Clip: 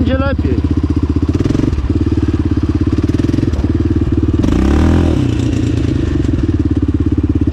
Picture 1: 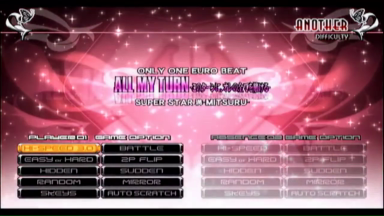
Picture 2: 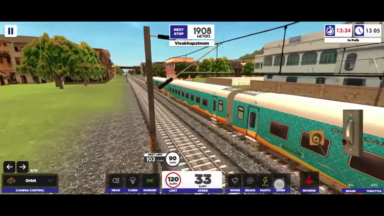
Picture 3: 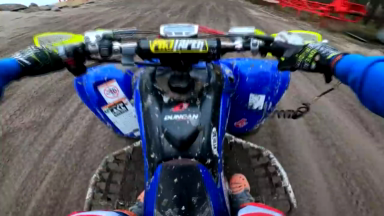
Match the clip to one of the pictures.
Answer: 3